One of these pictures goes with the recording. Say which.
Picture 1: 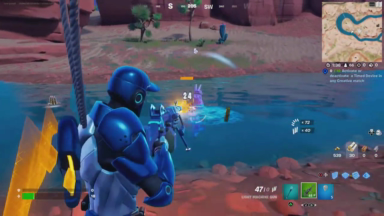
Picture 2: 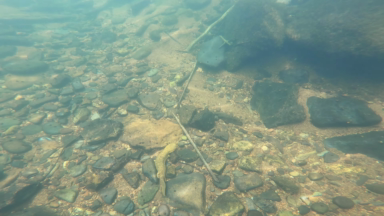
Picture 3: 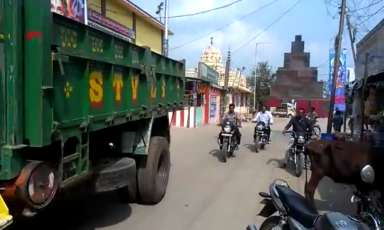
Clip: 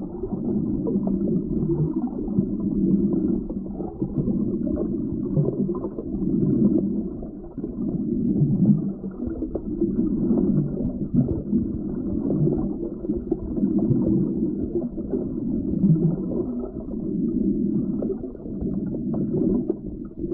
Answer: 2